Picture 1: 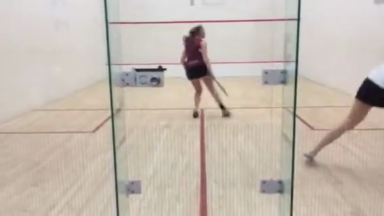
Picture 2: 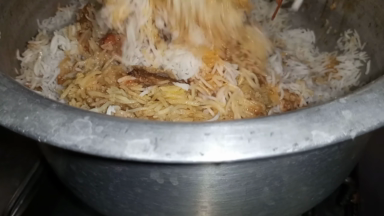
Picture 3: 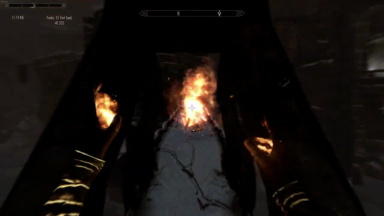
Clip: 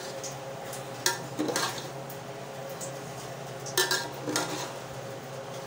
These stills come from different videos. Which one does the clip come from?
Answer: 2